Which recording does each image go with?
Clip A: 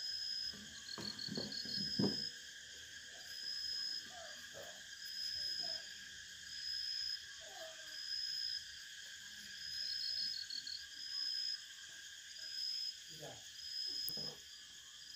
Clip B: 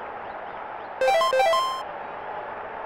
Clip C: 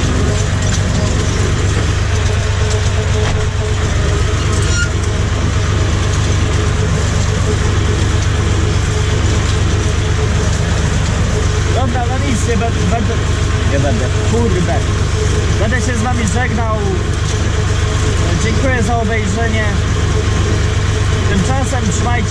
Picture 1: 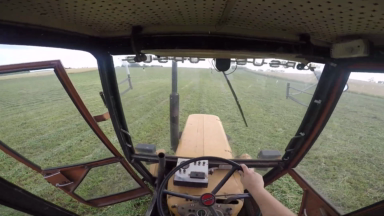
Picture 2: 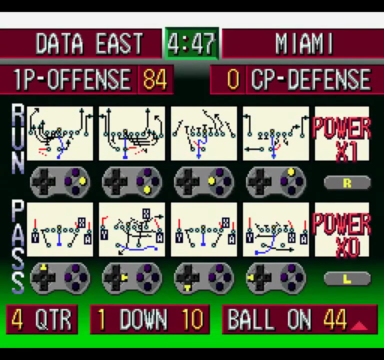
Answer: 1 C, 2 B